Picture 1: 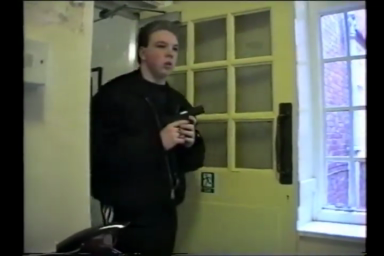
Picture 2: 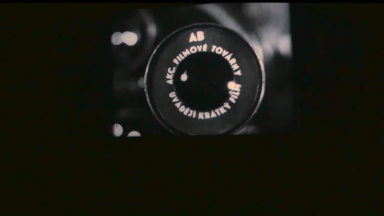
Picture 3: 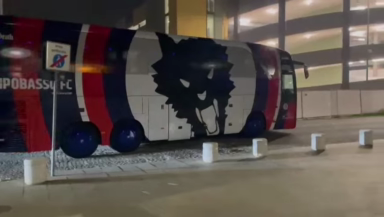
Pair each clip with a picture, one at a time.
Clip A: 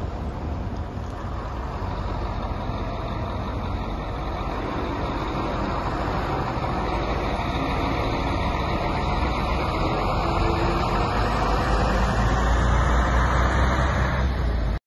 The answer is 3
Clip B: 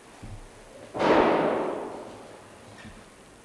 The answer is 1